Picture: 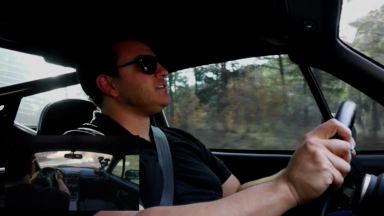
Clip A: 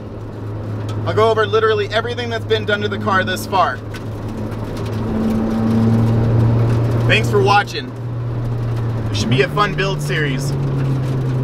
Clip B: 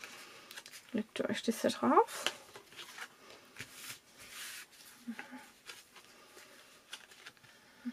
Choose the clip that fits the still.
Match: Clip A